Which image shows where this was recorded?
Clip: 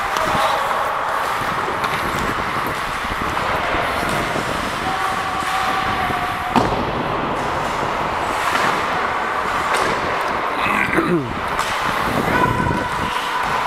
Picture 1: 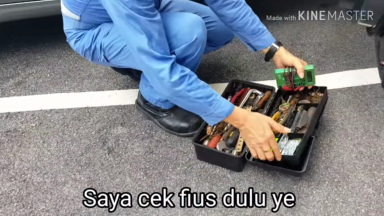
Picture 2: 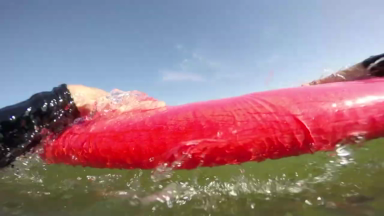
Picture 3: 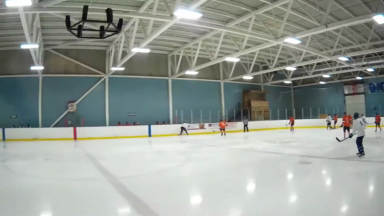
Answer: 3